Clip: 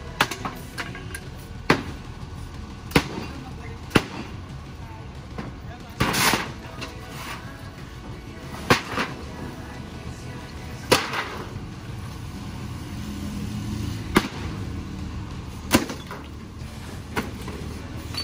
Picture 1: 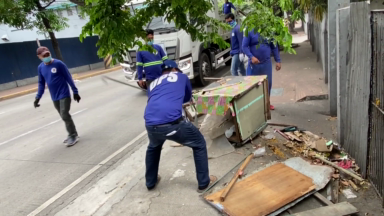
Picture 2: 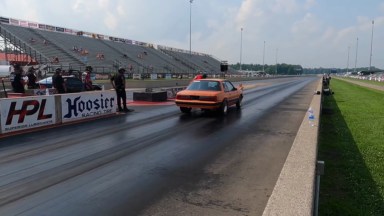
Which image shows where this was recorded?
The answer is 1